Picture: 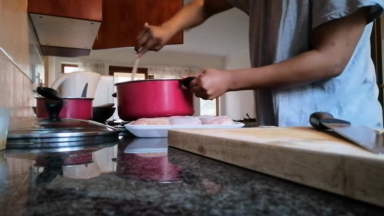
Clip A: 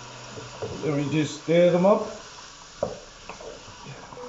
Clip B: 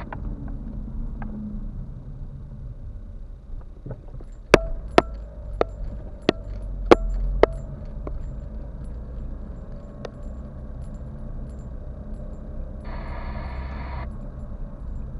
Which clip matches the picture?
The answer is A